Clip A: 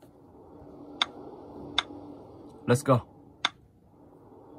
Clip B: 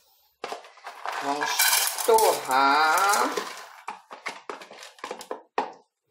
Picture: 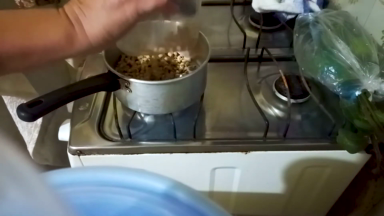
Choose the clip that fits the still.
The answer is B